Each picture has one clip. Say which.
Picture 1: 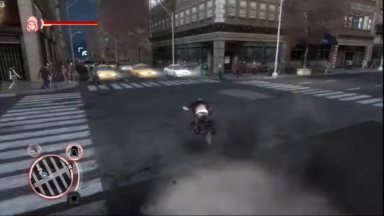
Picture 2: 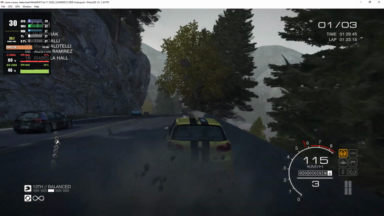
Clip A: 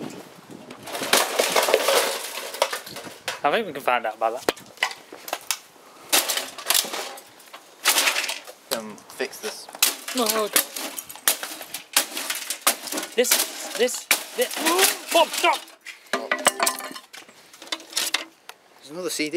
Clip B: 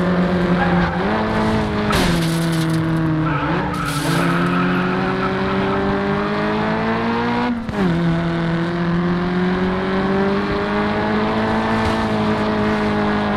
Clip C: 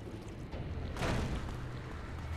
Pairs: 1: C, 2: B